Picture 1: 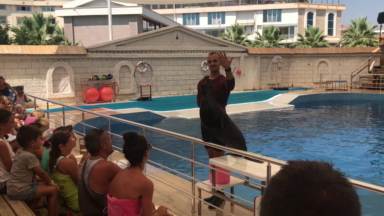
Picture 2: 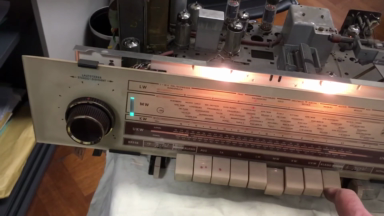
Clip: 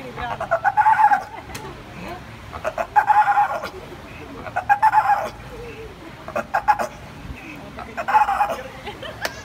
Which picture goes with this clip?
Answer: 1